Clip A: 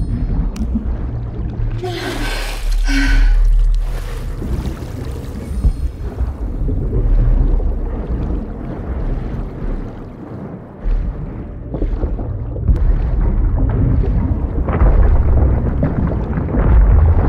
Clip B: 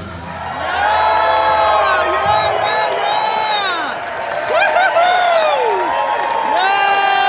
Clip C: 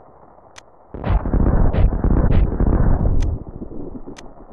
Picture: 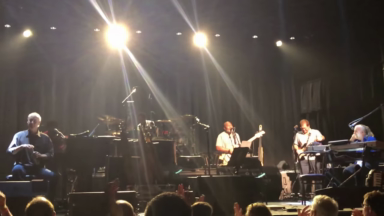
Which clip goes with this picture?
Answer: B